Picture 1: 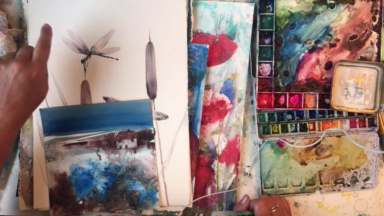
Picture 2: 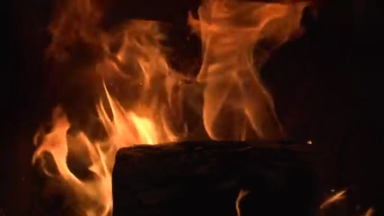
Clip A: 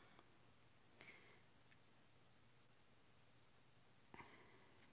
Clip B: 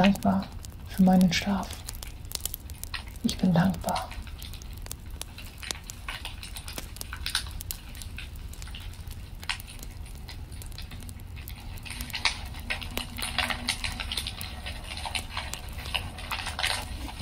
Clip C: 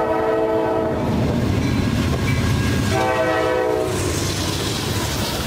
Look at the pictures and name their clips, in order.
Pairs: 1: A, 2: B